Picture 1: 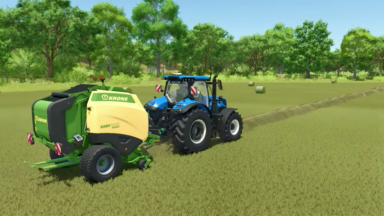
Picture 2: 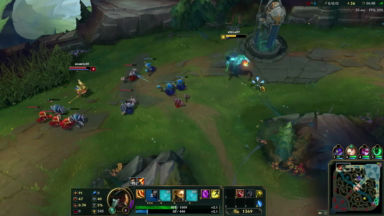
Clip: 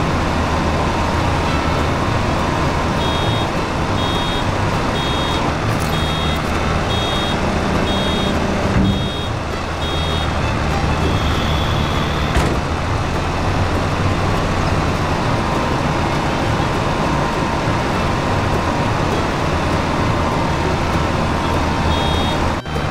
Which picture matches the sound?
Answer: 1